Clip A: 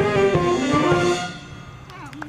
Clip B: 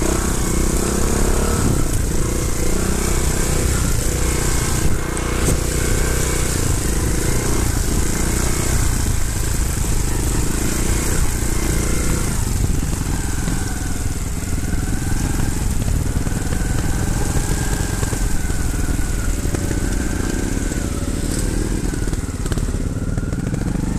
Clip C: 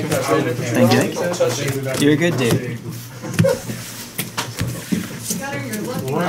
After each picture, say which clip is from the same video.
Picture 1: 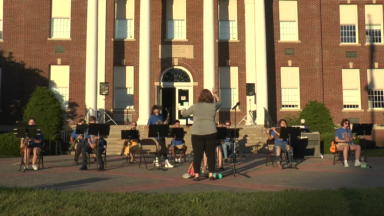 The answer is A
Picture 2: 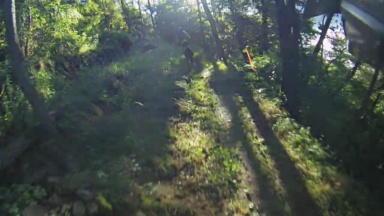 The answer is B